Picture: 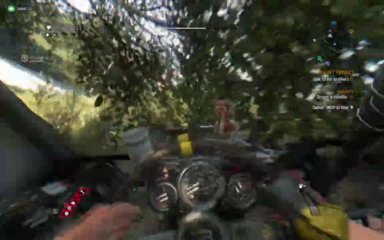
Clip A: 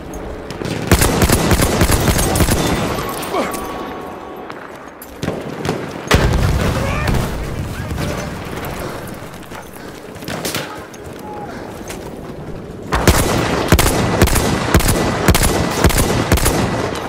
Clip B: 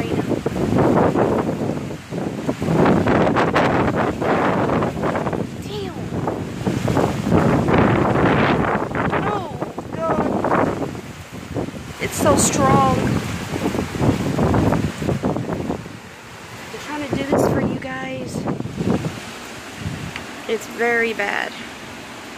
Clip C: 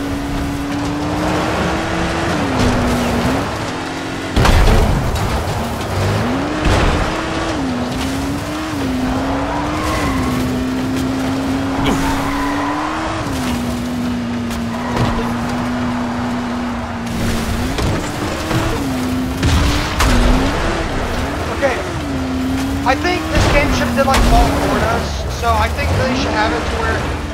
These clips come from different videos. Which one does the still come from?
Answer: C